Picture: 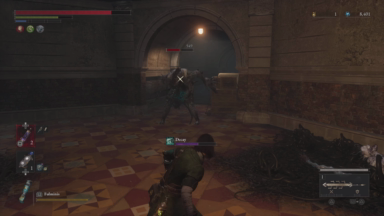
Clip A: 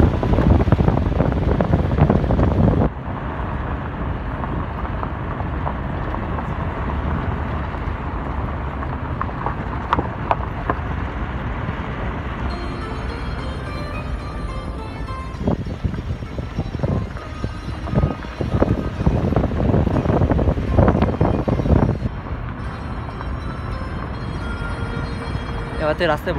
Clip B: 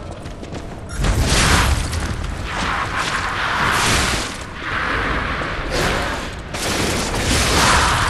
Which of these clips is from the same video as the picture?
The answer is B